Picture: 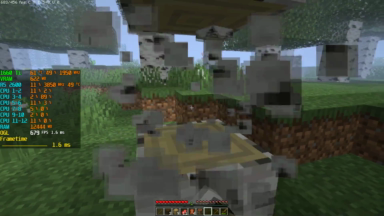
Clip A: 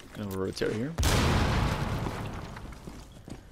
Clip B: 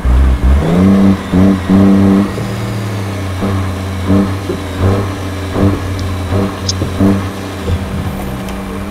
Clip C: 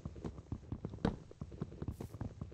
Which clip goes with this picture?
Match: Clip C